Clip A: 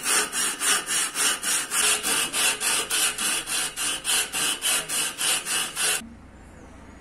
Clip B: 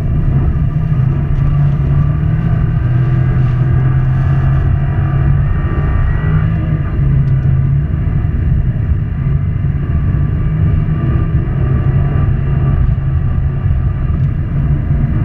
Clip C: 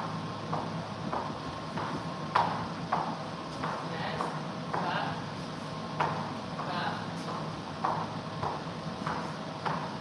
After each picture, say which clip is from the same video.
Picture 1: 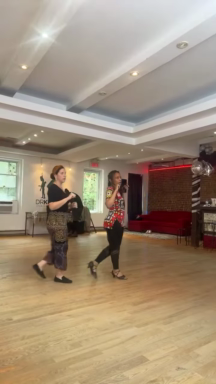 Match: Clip C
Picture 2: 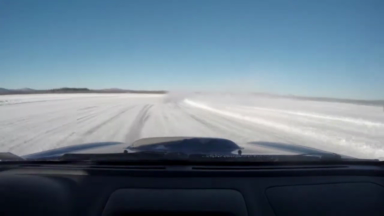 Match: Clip B